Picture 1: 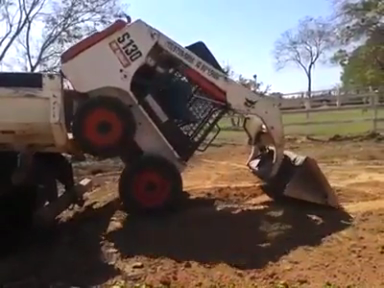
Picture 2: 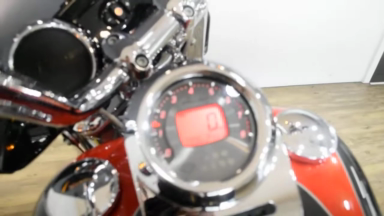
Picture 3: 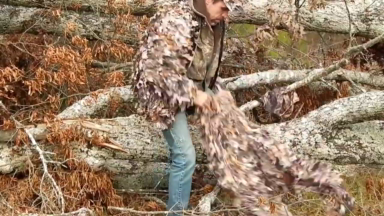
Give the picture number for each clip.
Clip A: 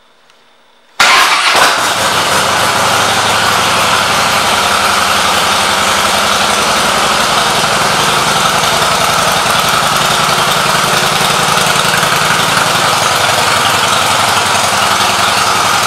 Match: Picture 2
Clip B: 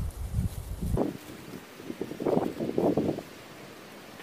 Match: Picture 3